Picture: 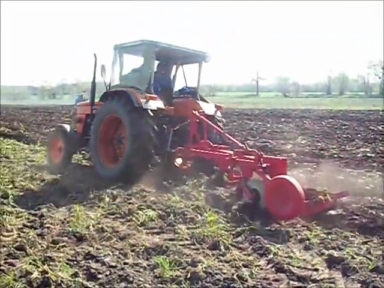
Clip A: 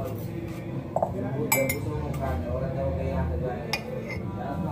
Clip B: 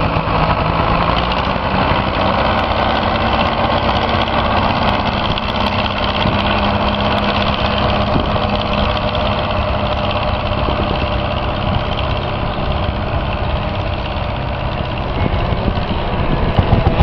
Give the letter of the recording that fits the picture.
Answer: B